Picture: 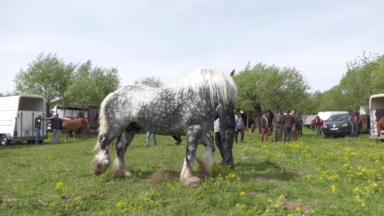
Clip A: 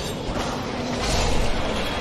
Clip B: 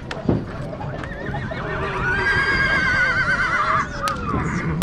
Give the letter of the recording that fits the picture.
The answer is B